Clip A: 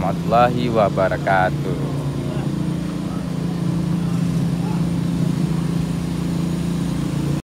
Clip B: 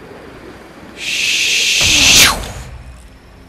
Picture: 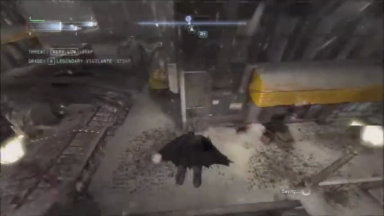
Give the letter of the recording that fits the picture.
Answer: B